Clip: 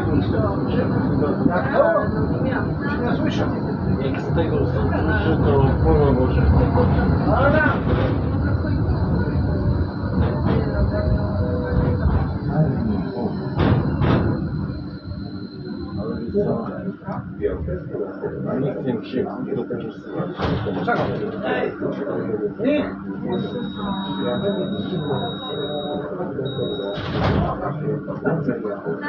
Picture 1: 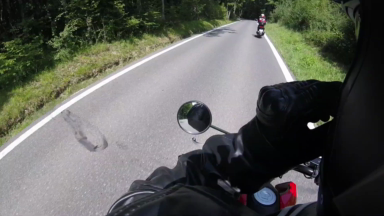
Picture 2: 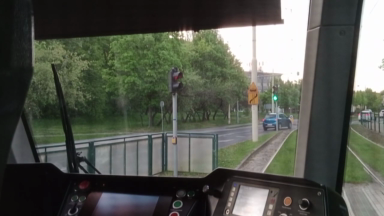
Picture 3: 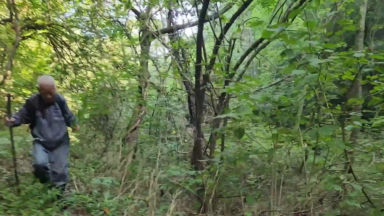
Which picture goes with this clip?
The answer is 2